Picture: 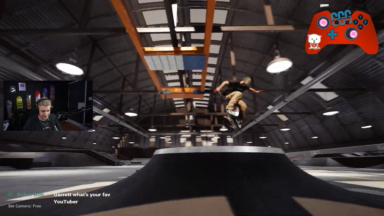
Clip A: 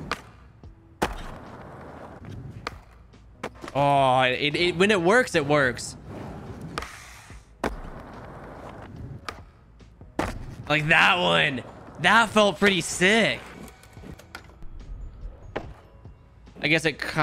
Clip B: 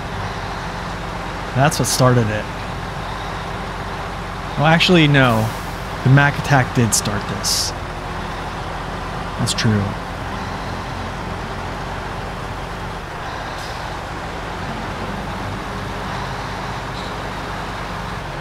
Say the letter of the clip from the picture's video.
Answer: A